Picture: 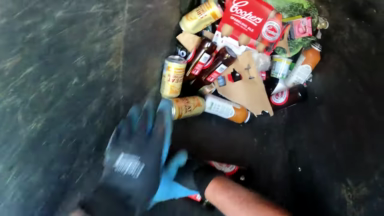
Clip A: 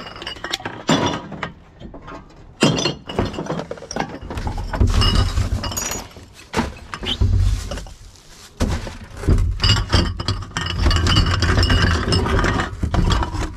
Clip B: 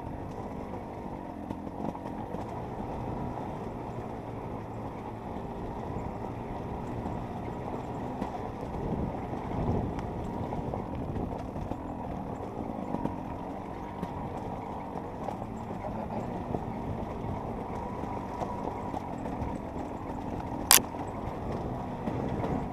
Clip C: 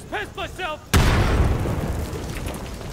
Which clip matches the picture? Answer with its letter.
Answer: A